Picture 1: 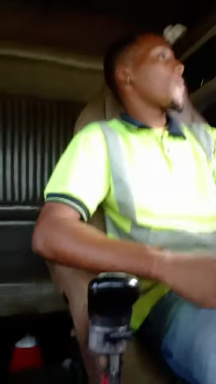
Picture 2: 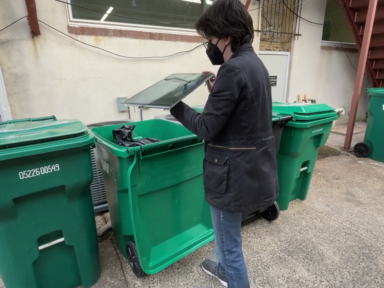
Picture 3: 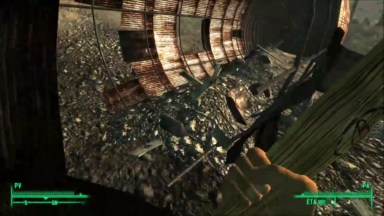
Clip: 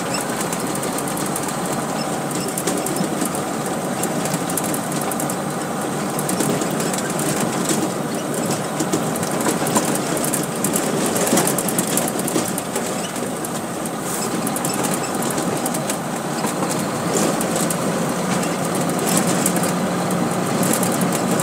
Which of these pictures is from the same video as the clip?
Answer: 1